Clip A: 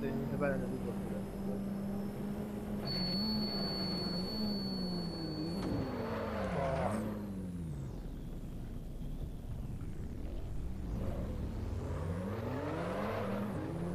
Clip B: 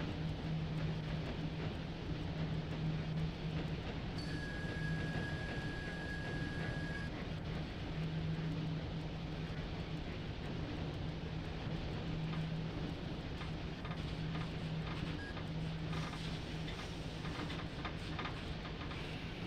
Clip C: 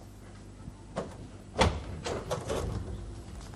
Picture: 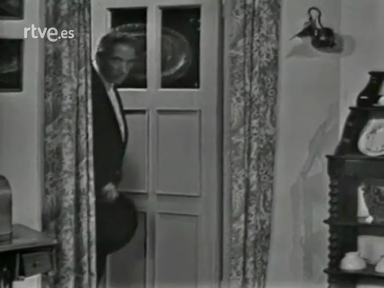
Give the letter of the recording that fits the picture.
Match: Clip C